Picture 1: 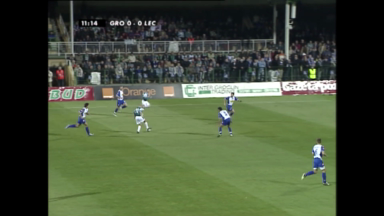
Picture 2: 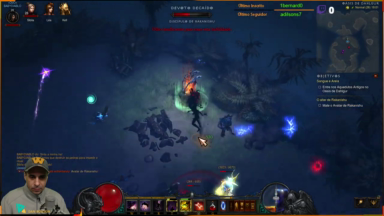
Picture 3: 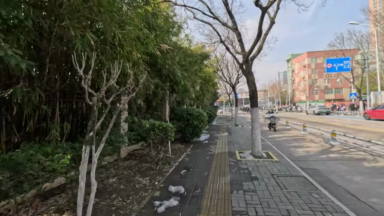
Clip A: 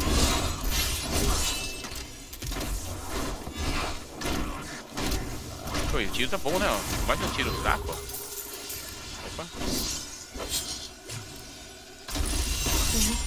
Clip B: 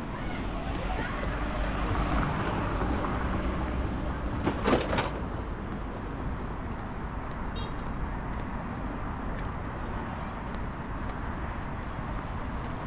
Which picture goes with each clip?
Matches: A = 2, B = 3